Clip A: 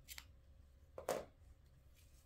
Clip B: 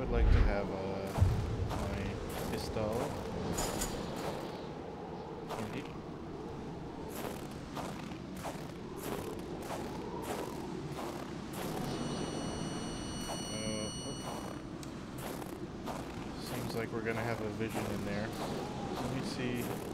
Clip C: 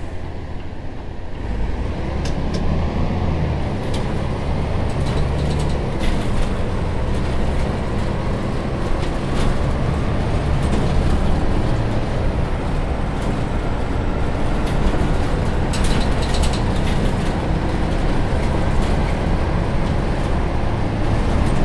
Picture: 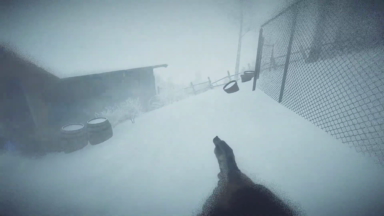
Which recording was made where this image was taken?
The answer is B